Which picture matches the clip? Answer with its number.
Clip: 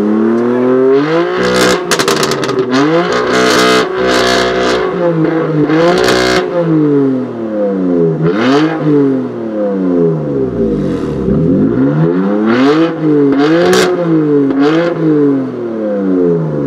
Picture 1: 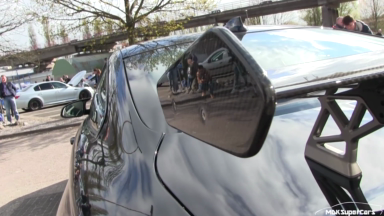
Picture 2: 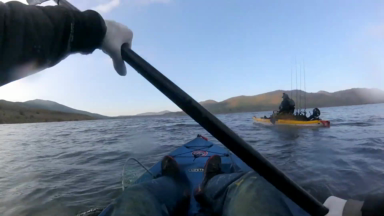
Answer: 1